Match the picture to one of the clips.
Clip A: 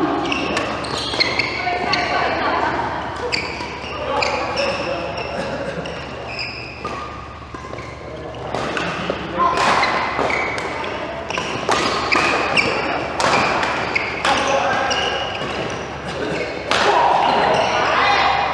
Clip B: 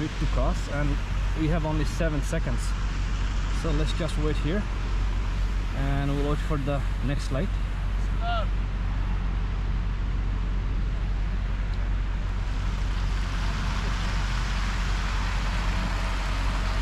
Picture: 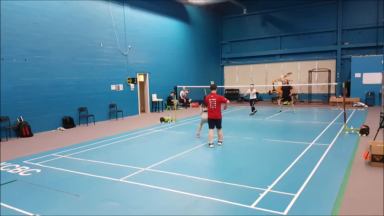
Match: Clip A